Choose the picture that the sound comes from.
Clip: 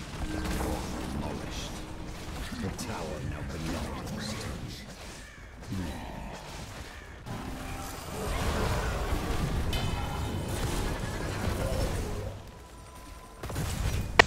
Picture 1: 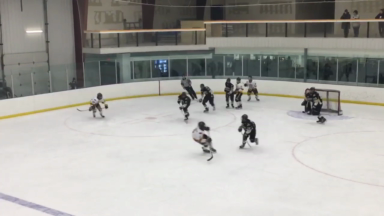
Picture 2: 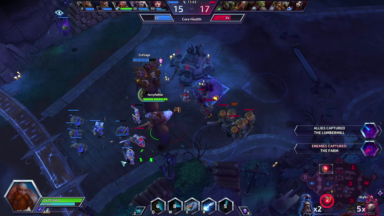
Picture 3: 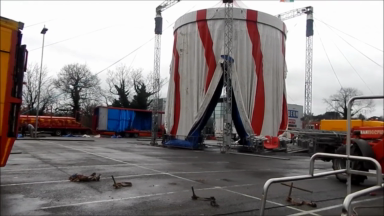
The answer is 2